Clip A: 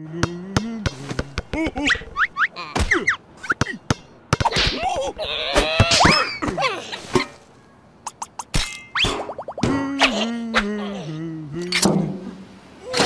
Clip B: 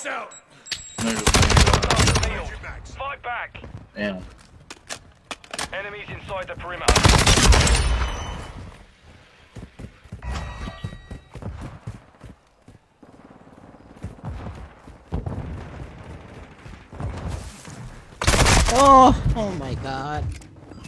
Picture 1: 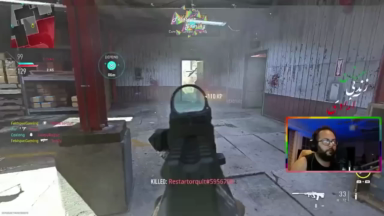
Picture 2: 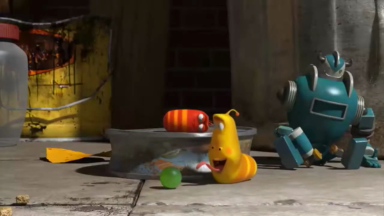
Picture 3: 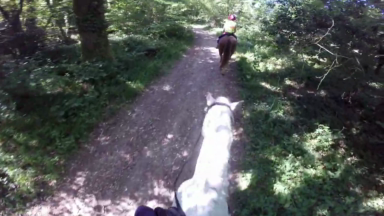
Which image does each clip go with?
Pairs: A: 2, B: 1